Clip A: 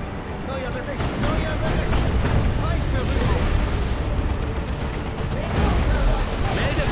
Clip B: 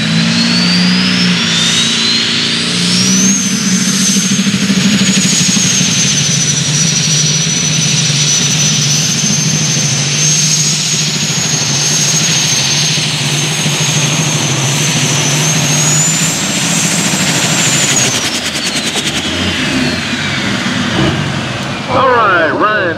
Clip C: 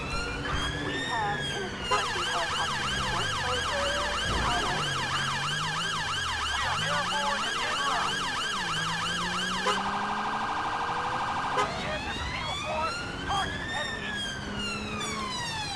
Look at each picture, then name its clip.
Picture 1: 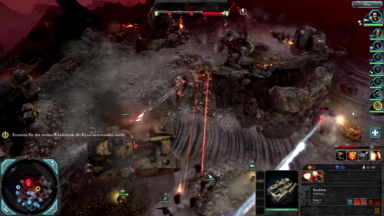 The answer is A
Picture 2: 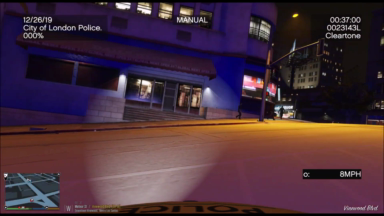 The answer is C